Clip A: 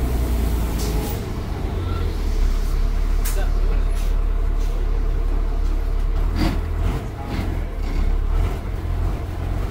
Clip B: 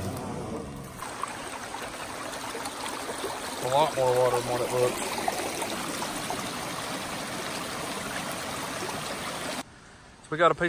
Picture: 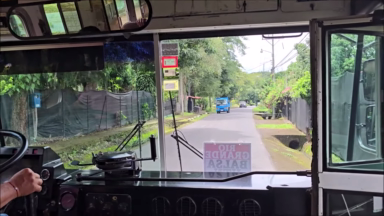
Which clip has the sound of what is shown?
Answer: A